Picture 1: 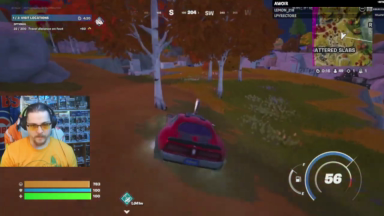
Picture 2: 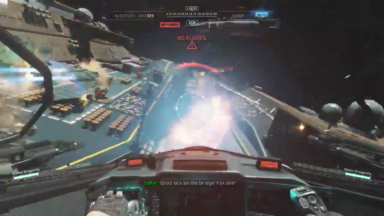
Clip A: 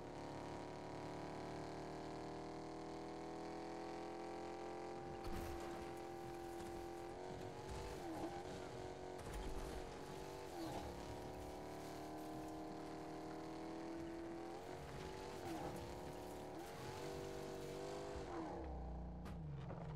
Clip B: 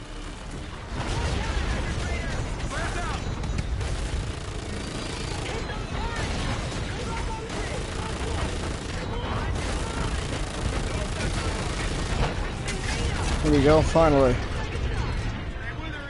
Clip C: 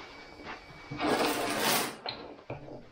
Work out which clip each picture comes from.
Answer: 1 A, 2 B